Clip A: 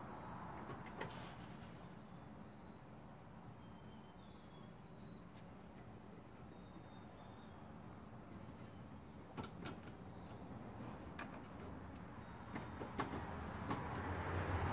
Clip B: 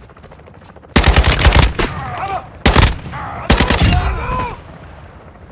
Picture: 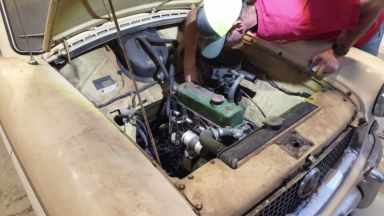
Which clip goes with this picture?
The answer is A